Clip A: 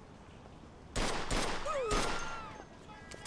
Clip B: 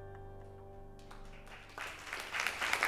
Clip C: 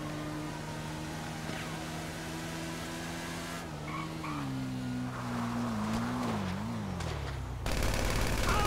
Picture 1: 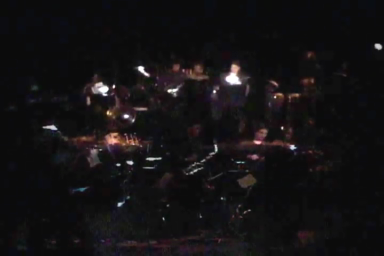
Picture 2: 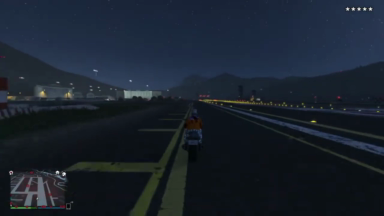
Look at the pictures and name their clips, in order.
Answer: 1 B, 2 C